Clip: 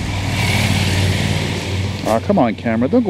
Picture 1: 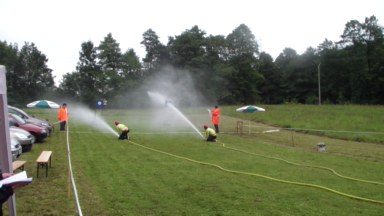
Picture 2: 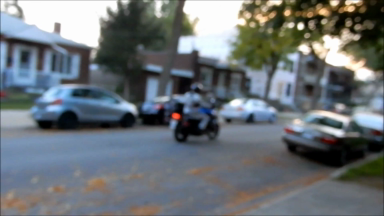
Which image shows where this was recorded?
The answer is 2